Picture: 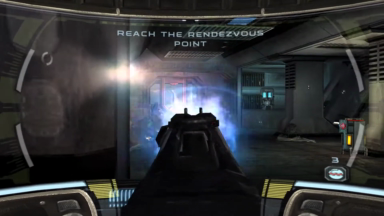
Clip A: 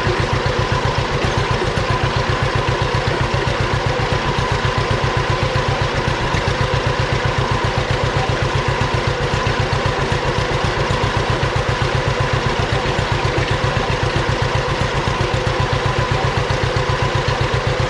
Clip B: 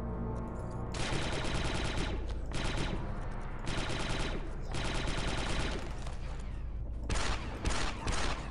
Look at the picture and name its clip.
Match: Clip B